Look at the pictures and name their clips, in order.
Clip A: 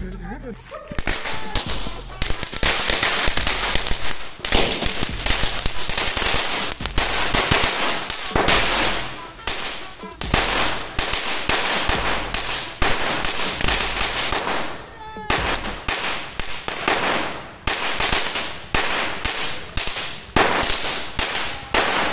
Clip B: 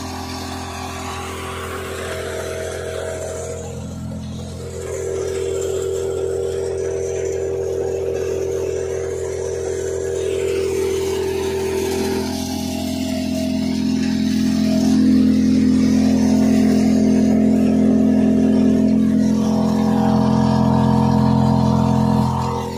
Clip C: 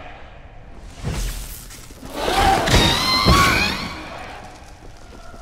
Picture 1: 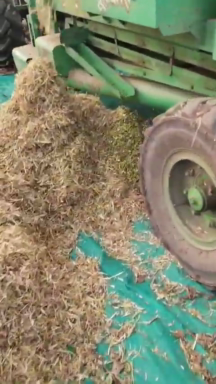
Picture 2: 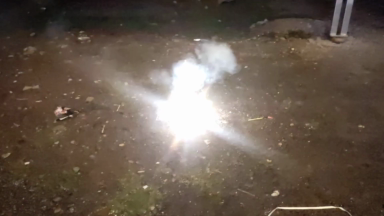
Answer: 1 B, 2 A